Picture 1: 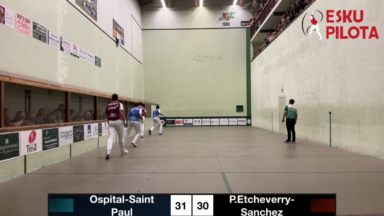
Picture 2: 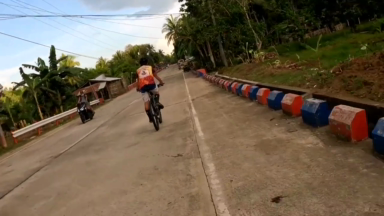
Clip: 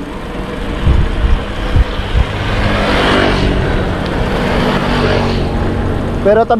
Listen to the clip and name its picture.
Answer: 2